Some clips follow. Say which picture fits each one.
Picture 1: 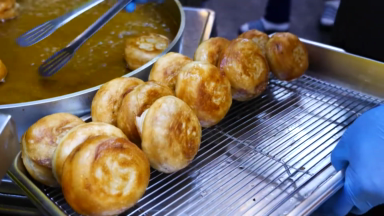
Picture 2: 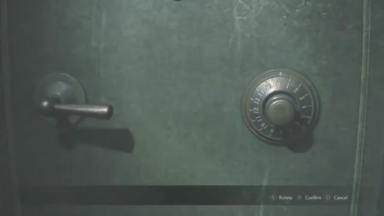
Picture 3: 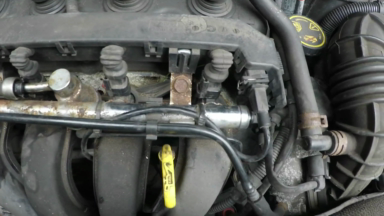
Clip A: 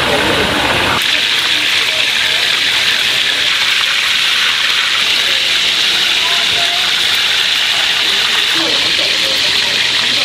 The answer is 1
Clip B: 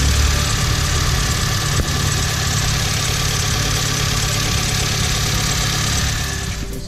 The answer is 3